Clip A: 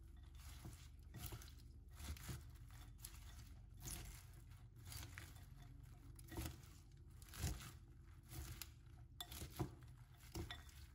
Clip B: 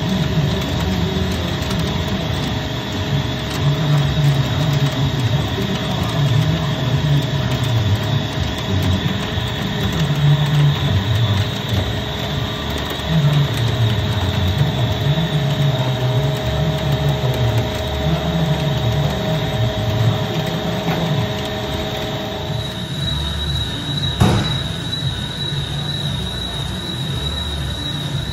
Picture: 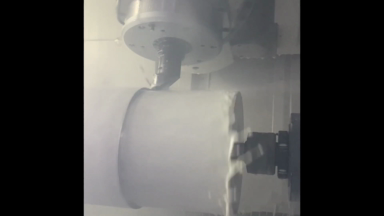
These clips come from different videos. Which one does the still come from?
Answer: B